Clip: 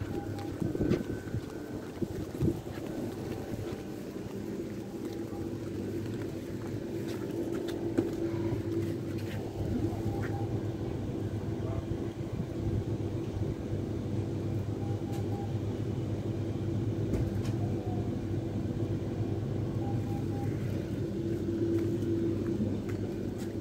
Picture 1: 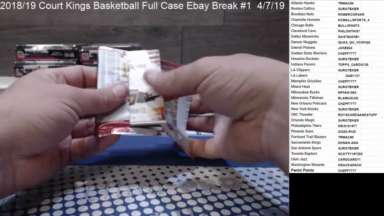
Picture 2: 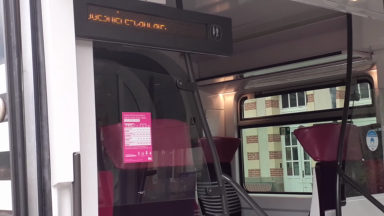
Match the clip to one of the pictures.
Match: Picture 2